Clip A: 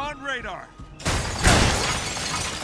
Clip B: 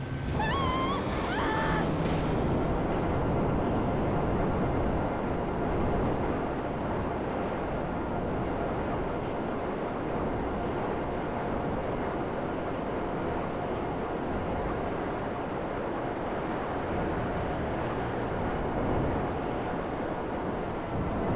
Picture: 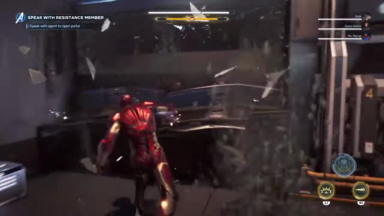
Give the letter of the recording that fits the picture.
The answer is A